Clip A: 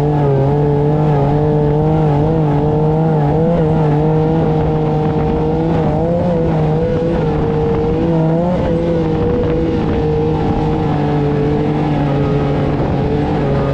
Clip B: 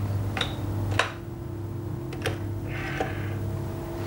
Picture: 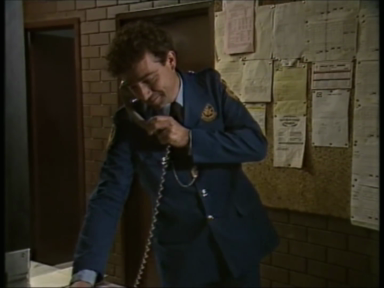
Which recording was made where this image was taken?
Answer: B